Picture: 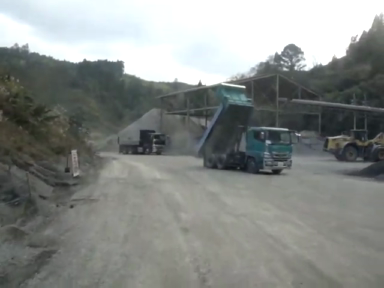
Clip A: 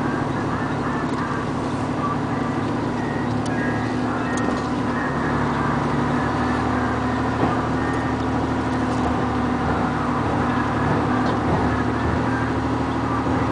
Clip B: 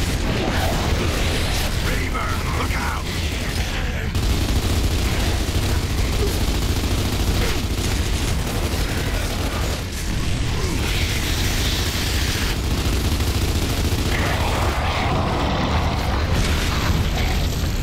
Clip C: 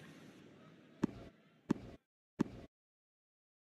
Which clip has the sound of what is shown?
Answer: A